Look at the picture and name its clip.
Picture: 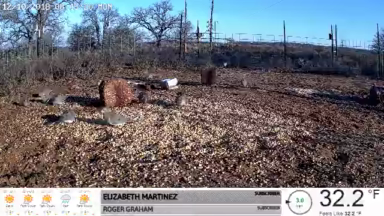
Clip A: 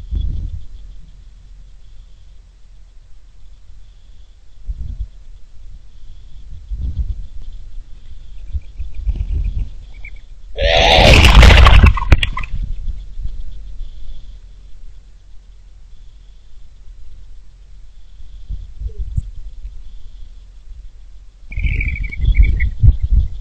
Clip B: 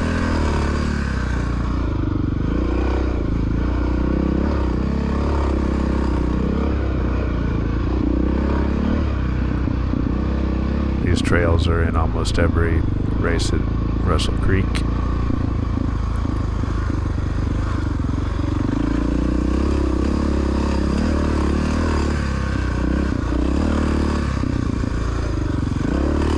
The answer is A